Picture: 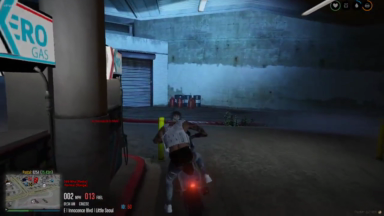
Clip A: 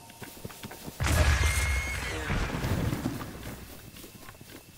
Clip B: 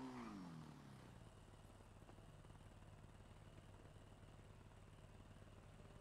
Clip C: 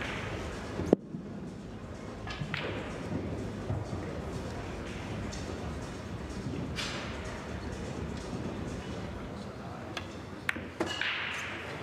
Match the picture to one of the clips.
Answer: B